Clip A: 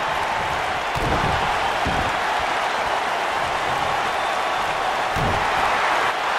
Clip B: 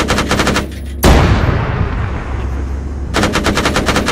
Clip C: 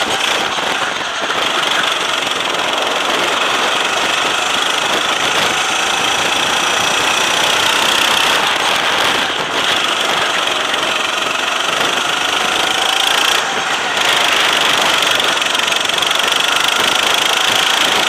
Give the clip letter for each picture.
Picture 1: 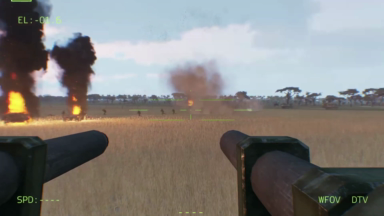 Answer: B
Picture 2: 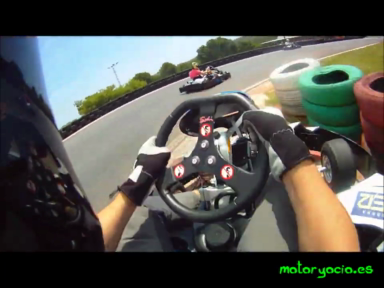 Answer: C